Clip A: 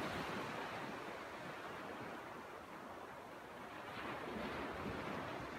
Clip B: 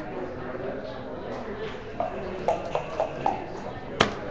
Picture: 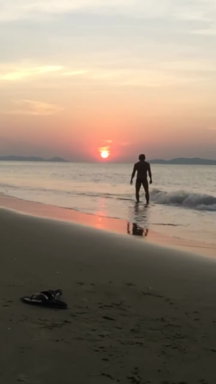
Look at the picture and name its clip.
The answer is A